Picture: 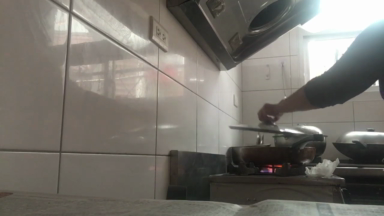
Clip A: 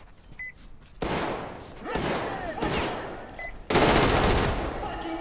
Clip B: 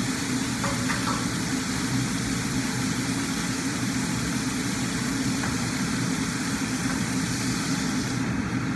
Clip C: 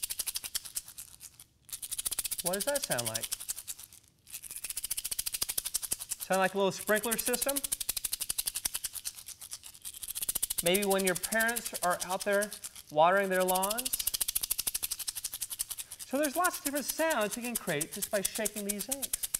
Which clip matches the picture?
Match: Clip B